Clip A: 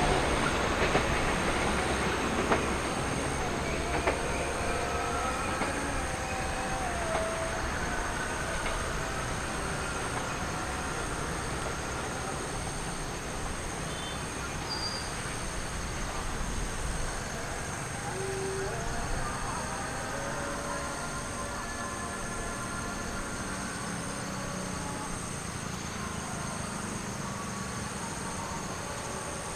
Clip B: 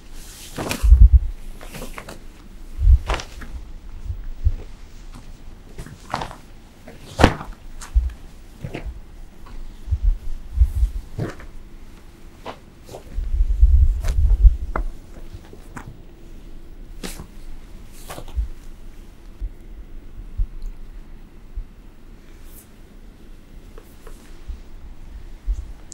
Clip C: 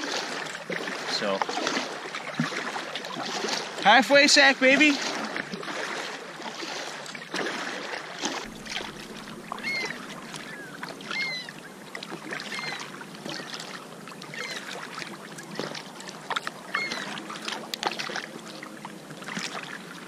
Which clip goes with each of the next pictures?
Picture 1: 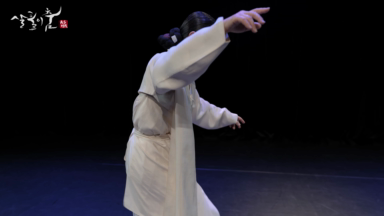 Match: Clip B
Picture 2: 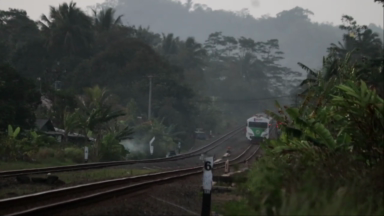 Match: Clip A